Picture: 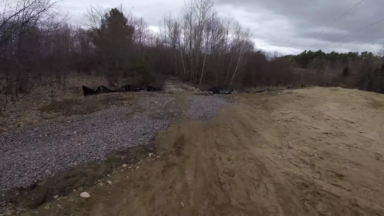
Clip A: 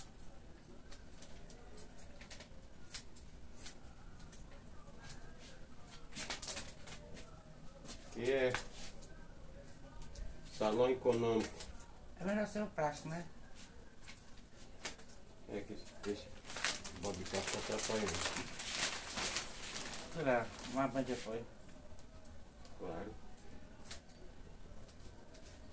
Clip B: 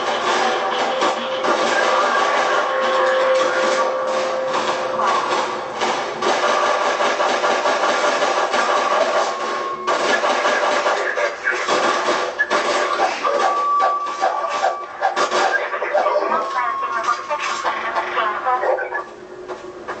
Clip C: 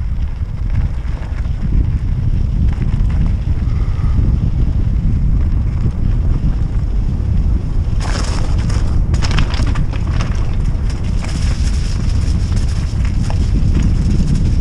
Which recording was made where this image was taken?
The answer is C